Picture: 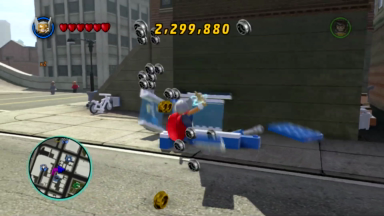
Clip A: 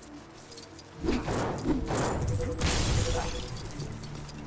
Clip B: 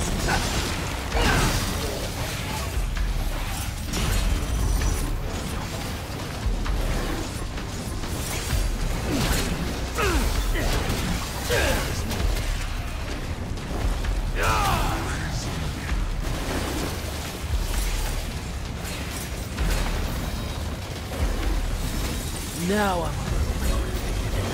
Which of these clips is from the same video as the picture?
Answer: A